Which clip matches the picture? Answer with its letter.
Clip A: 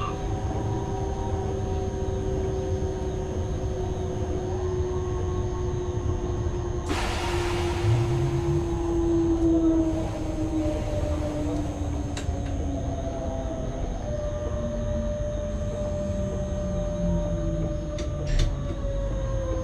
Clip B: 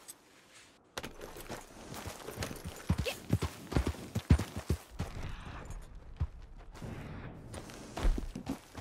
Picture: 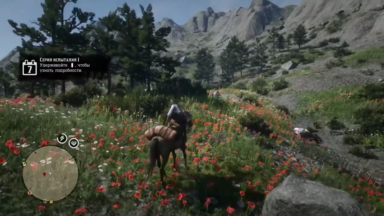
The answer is B